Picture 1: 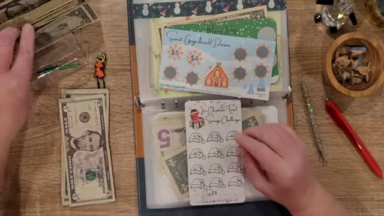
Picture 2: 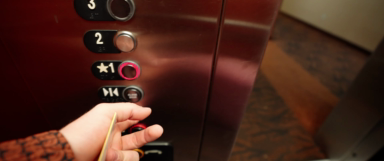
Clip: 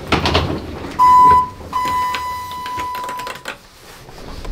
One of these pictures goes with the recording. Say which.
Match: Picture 2